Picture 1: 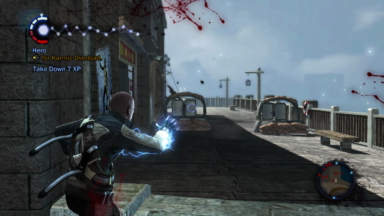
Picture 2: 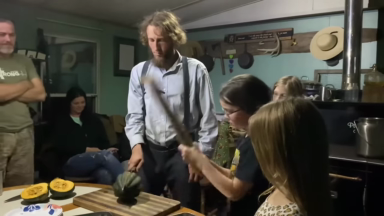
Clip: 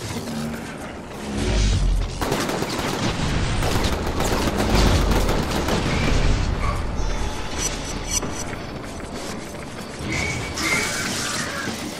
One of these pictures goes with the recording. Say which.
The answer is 1